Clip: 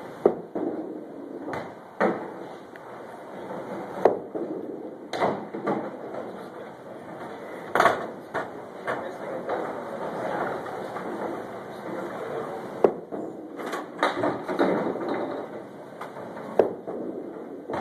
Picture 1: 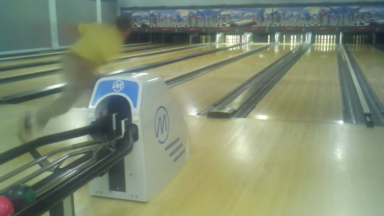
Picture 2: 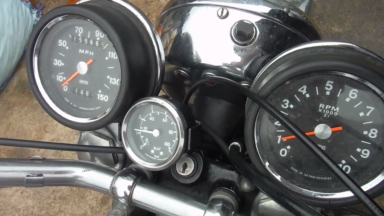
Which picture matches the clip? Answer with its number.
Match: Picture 1